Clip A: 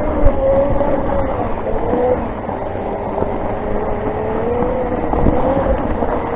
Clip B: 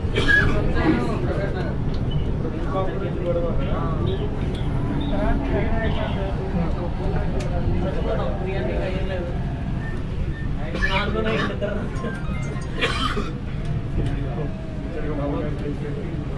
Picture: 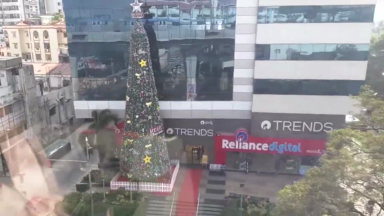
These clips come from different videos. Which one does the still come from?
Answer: B